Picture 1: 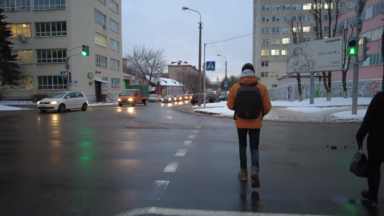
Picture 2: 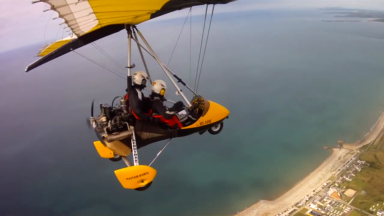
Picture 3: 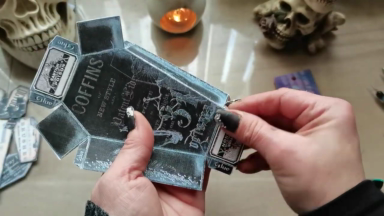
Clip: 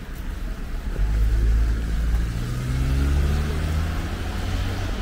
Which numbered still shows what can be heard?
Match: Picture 1